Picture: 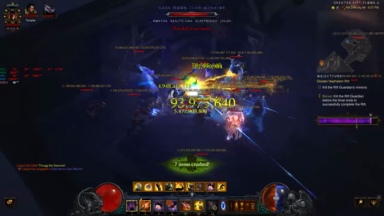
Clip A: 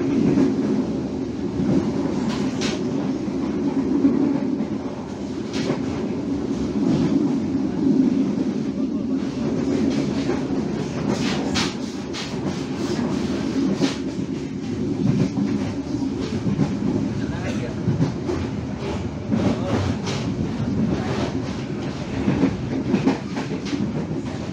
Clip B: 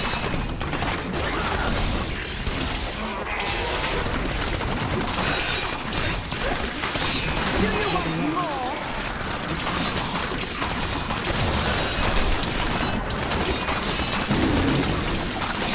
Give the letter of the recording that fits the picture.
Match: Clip B